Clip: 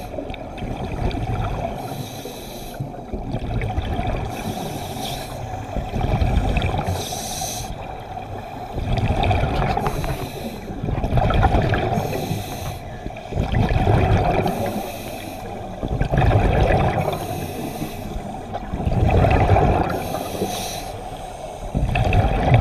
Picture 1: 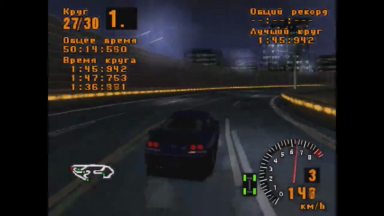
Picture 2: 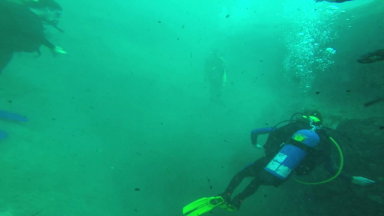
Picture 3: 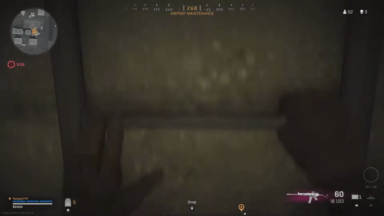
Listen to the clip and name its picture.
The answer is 2